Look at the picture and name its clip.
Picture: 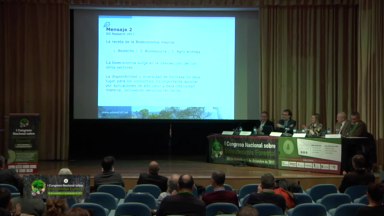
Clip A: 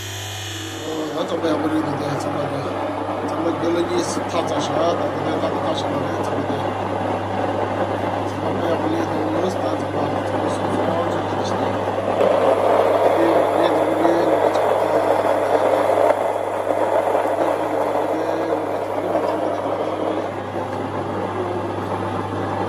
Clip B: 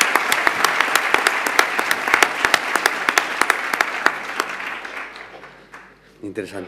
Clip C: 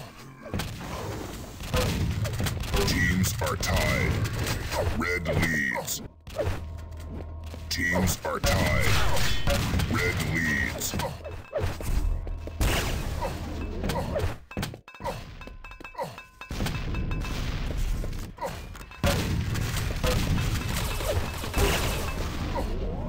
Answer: B